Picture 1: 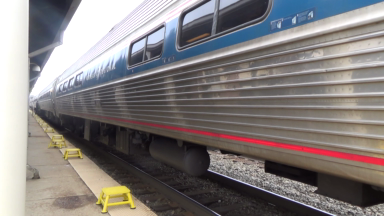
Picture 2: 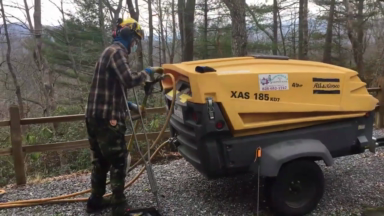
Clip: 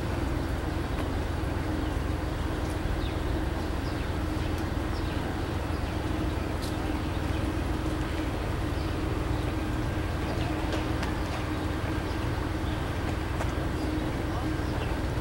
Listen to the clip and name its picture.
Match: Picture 1